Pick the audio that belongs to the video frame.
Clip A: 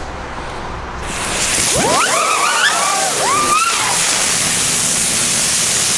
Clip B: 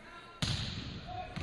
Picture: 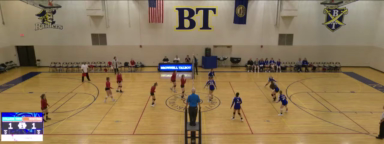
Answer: B